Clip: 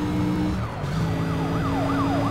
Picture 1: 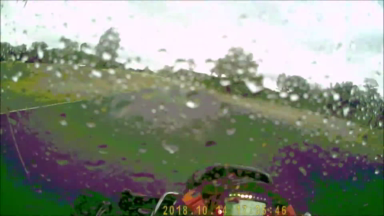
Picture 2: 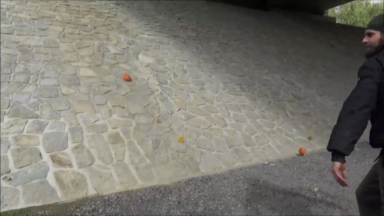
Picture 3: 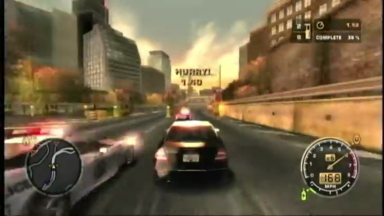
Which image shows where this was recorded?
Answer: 3